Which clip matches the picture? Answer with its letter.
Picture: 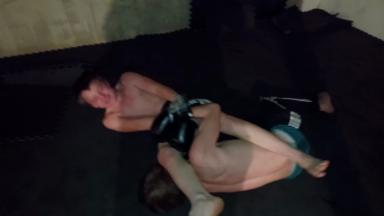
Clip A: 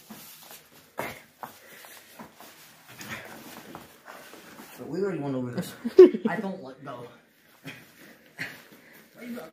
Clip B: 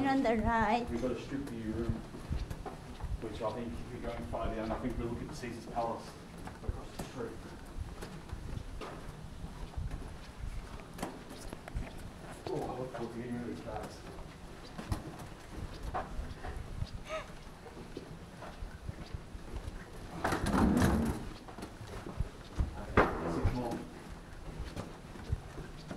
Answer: A